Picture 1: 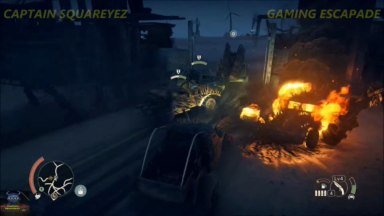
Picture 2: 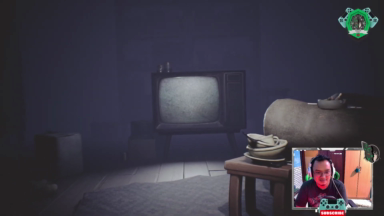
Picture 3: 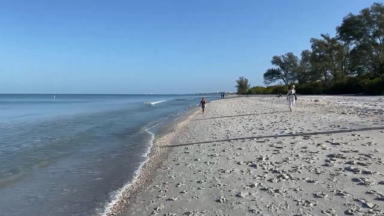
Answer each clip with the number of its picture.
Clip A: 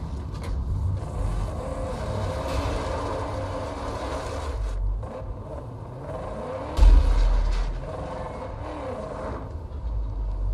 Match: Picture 1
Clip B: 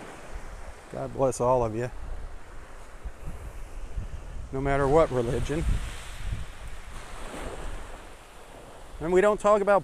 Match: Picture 3